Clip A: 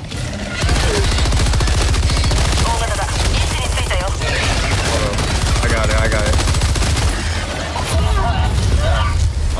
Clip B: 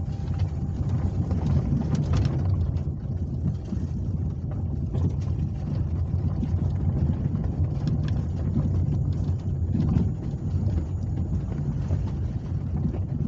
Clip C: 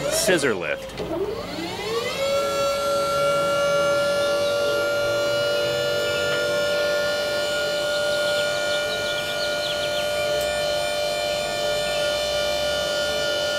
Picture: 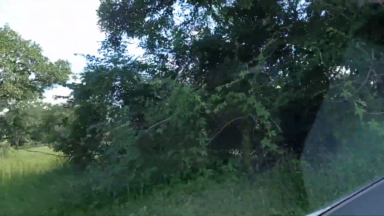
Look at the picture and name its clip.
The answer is B